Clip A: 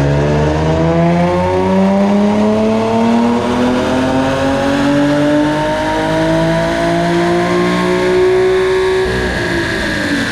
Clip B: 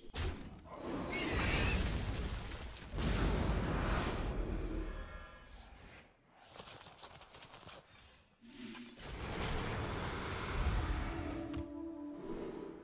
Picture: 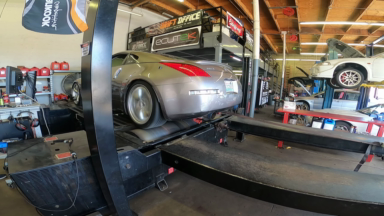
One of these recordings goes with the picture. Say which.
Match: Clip A